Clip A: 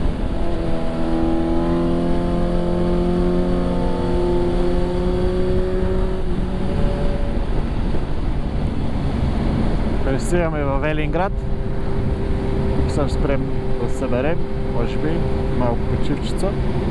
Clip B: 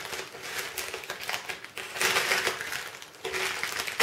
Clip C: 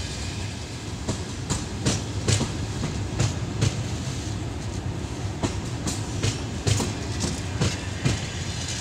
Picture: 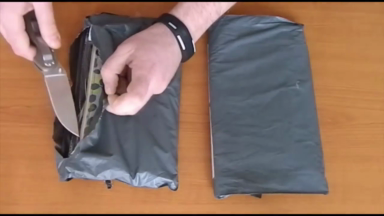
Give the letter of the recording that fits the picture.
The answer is B